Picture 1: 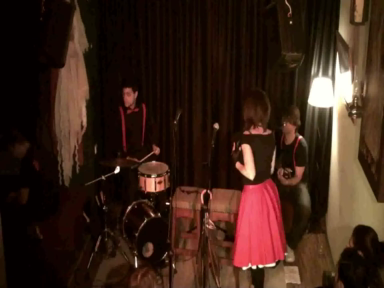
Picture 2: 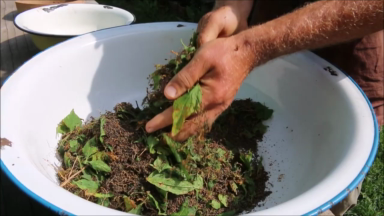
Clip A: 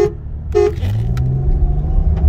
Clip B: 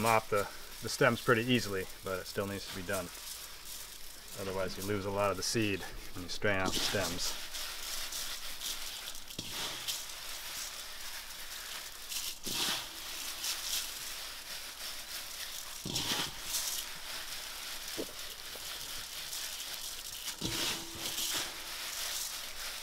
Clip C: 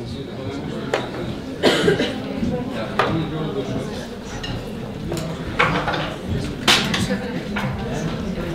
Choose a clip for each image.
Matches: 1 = C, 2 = B